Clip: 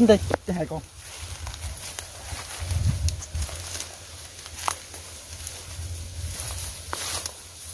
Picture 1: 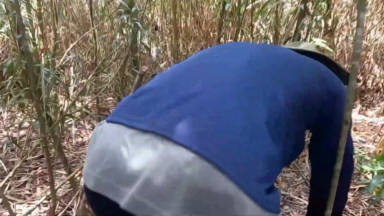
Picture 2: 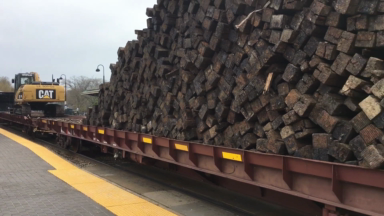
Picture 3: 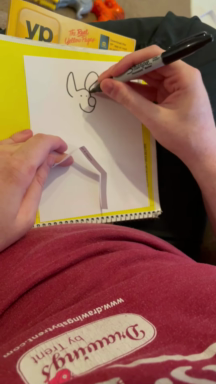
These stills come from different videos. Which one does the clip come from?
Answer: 1